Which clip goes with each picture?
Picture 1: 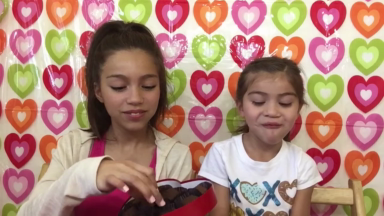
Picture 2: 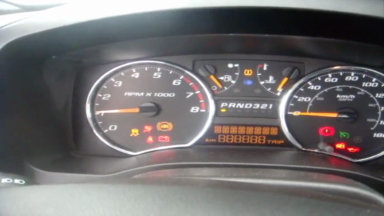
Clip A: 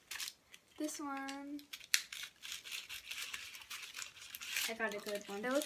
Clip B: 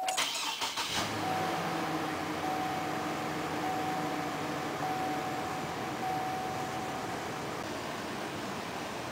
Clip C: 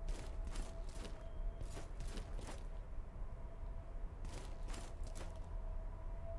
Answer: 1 A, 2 B